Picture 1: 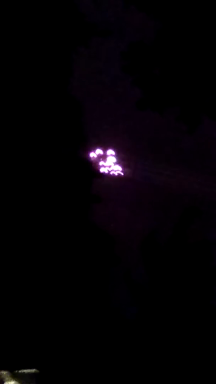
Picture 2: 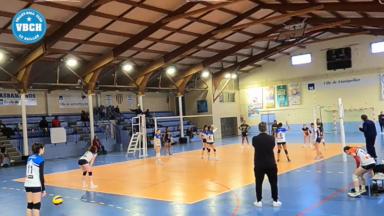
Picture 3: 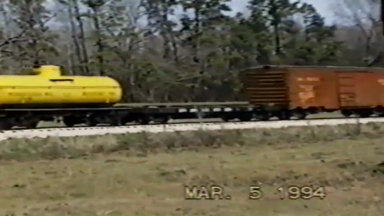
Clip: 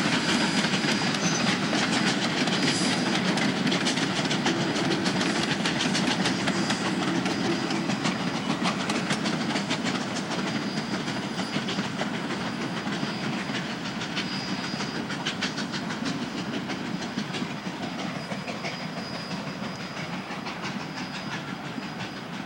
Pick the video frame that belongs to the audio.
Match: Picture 3